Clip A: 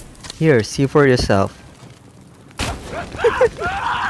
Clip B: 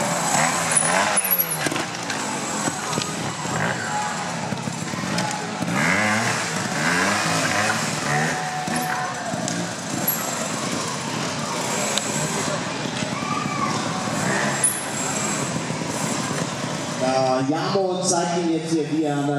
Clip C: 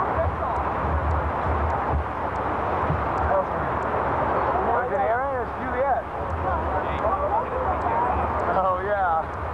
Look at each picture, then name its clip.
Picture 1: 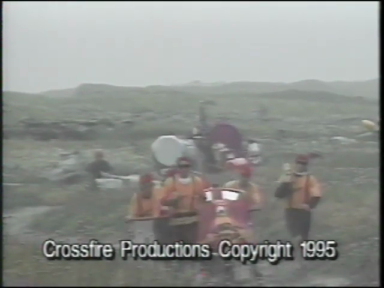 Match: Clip C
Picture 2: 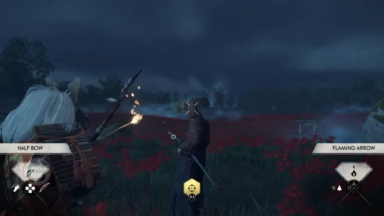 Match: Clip A